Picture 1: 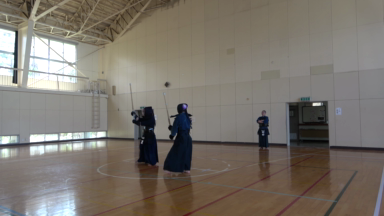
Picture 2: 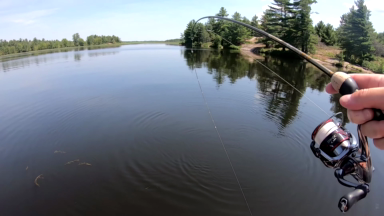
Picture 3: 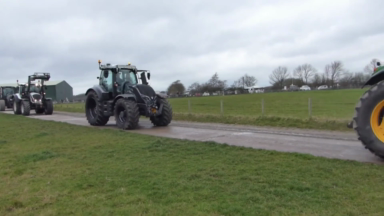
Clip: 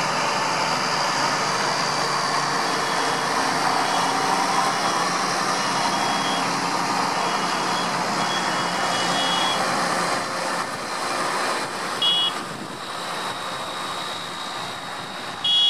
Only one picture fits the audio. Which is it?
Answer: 3